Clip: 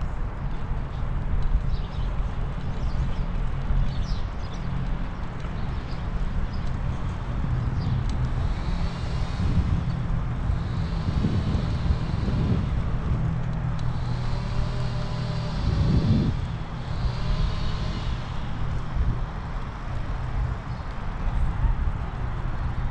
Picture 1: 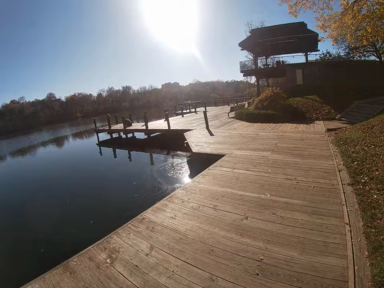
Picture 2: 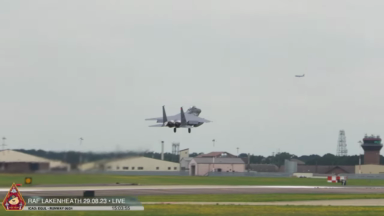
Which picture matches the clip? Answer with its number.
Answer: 1